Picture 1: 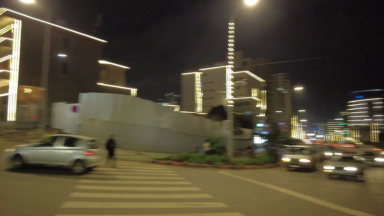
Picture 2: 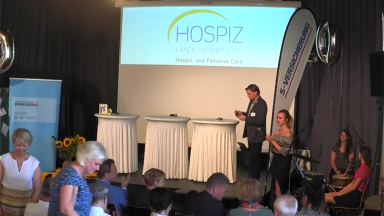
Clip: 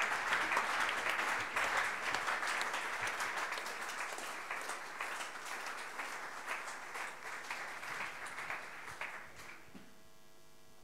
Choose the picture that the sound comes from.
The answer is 2